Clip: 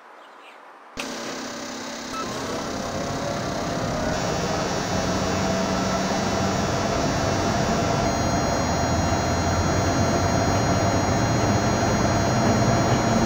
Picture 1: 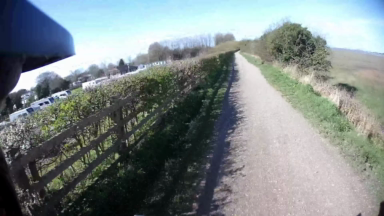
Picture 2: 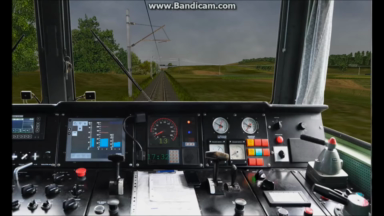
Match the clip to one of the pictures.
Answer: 2